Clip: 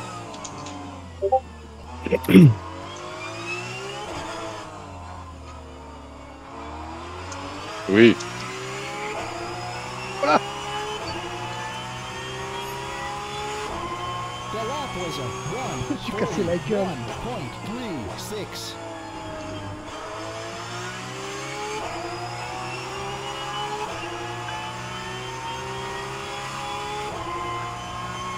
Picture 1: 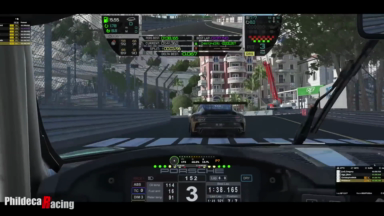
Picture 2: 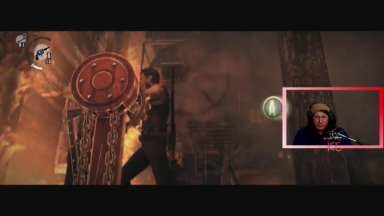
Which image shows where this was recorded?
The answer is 1